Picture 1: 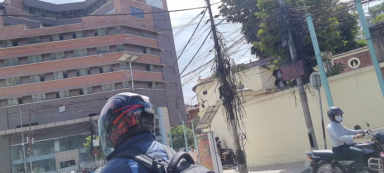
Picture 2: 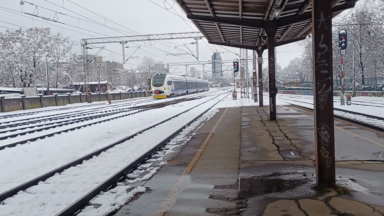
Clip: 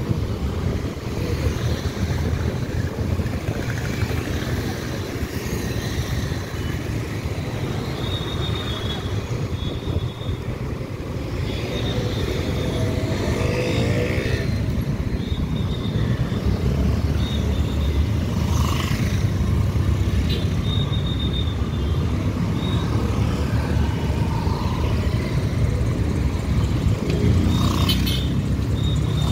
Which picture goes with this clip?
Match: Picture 1